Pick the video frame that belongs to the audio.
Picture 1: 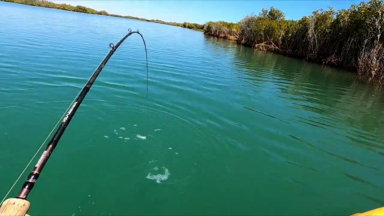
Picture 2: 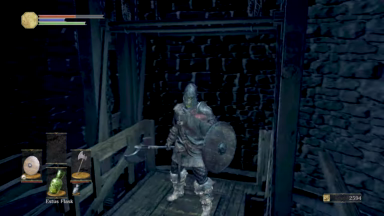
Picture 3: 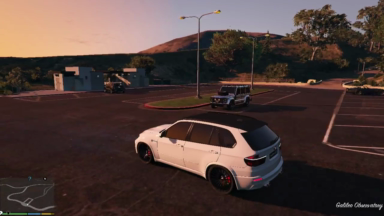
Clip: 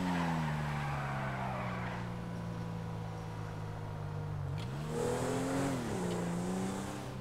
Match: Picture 3